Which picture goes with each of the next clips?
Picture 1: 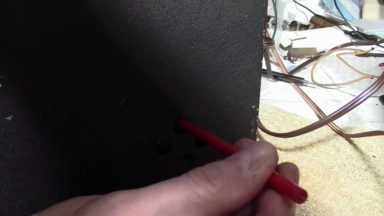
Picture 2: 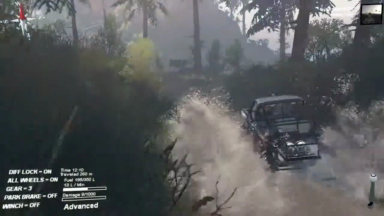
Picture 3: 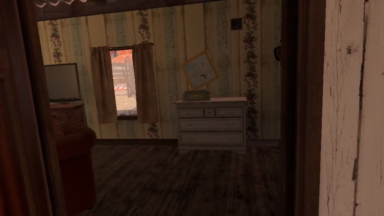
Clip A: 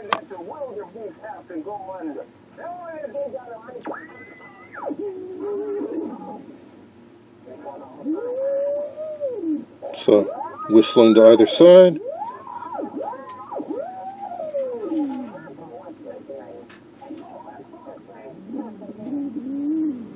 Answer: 1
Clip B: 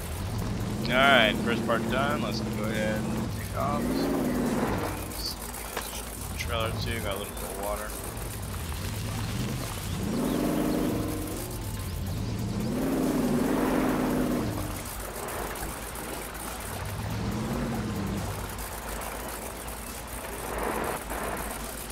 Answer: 2